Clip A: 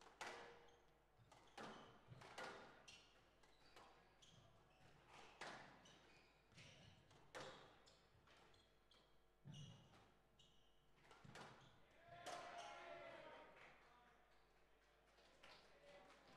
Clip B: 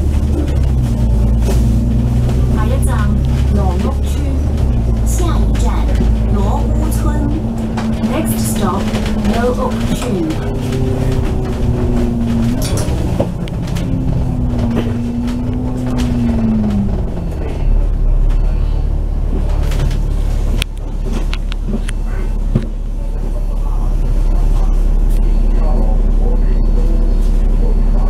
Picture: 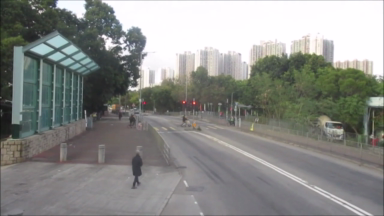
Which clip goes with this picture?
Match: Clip B